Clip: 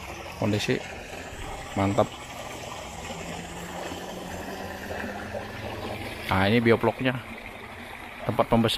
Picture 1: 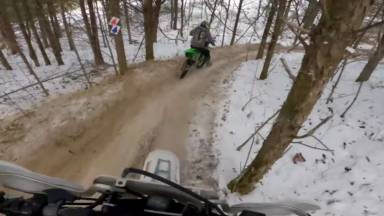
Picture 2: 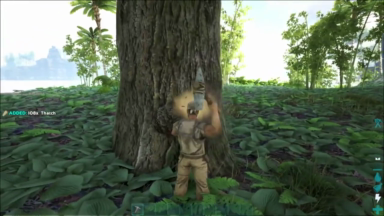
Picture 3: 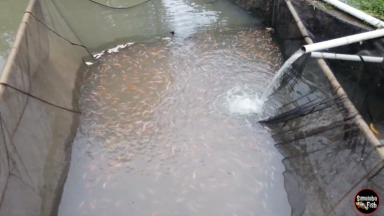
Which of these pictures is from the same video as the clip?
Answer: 3